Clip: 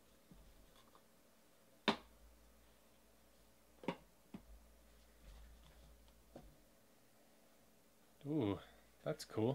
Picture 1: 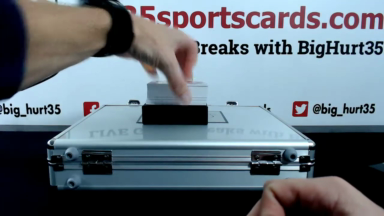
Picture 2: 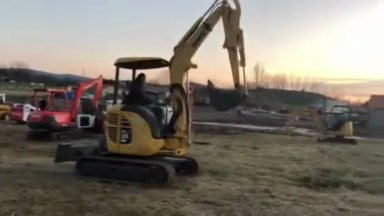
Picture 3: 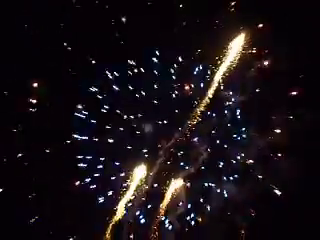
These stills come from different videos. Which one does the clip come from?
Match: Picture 1